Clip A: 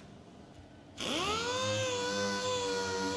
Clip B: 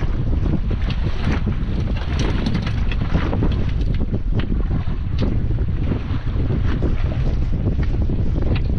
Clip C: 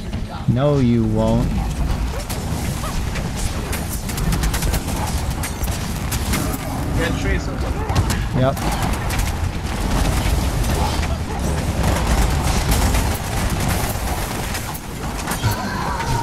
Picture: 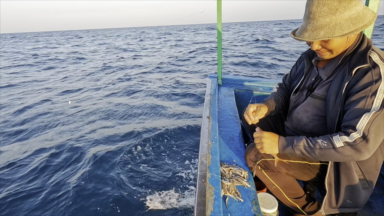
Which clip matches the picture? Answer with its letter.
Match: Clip B